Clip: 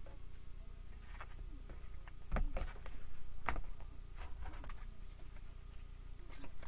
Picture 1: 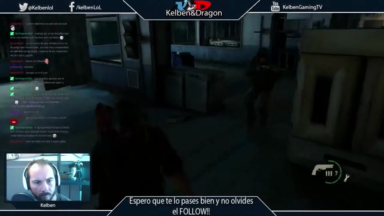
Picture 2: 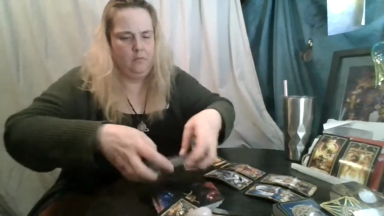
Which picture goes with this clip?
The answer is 2